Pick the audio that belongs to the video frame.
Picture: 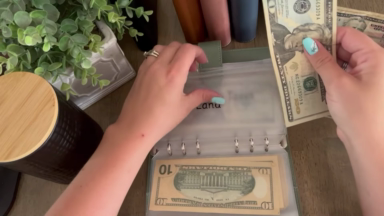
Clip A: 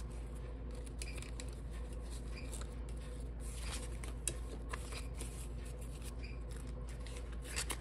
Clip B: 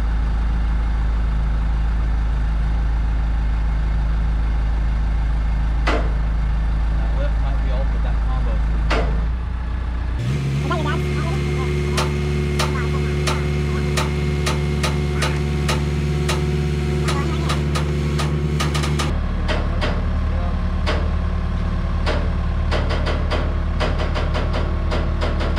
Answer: A